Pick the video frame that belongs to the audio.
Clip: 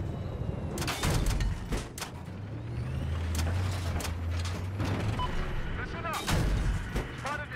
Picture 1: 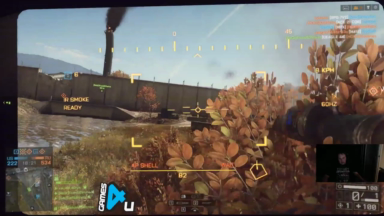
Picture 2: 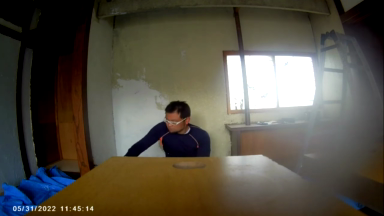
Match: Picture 1